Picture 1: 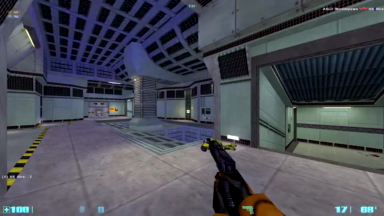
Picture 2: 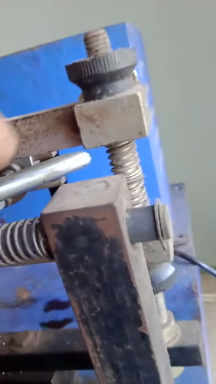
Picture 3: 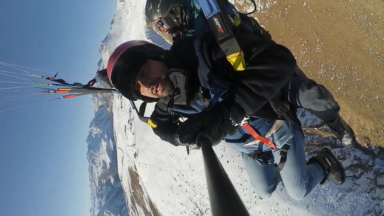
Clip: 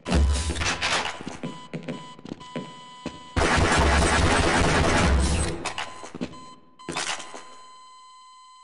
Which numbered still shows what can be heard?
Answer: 1